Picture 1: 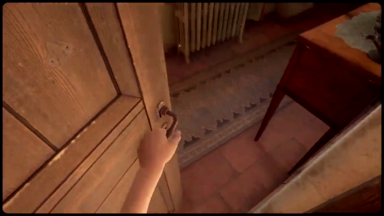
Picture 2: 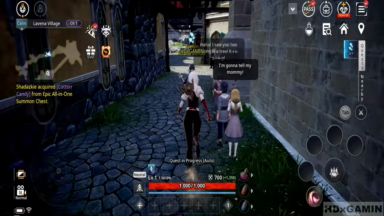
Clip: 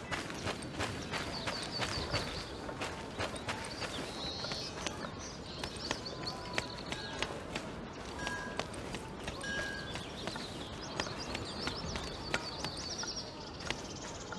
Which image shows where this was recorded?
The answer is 2